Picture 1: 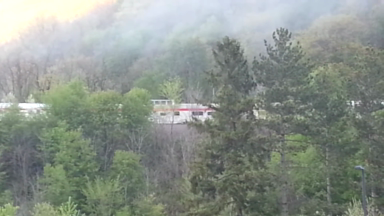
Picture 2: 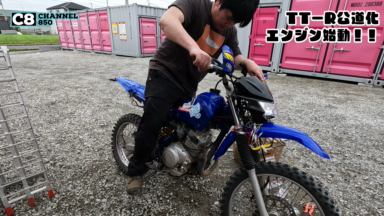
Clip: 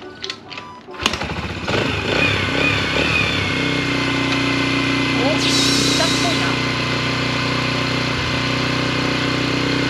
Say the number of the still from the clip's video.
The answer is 2